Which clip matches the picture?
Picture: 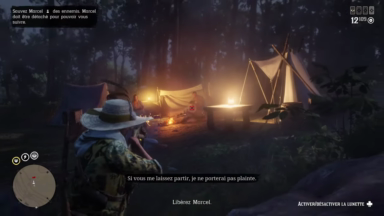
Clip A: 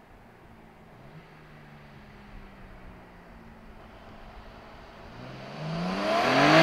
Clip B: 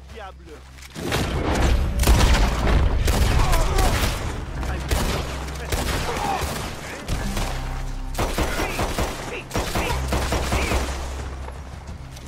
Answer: B